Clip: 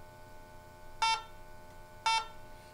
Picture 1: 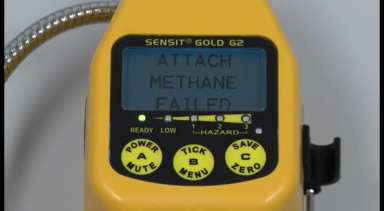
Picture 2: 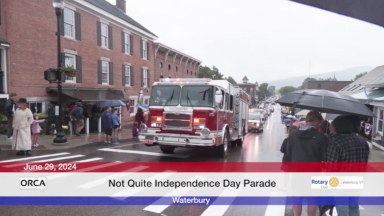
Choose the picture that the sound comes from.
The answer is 1